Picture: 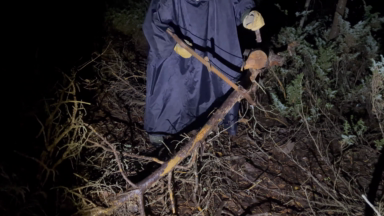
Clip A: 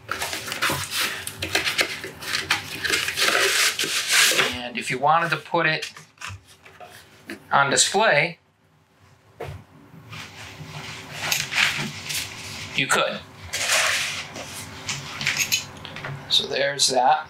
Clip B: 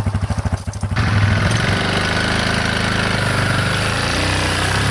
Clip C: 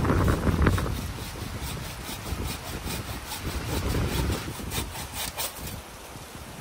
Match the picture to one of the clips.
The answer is C